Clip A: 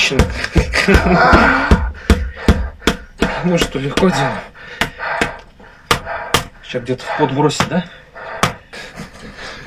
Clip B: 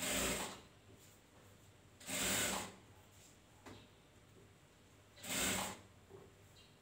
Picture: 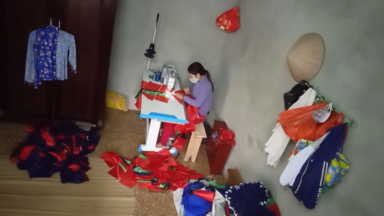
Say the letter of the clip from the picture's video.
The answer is B